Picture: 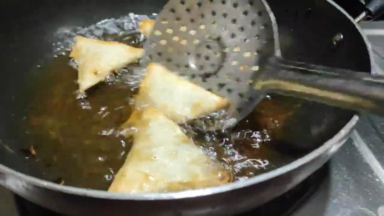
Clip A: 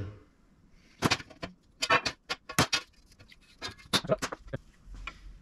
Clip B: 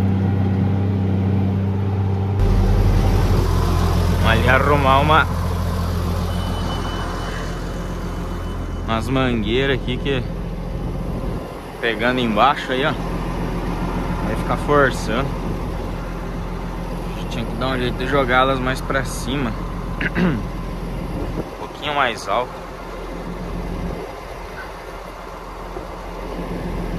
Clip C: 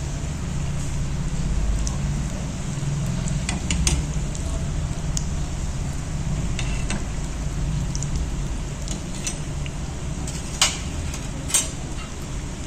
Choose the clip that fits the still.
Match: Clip C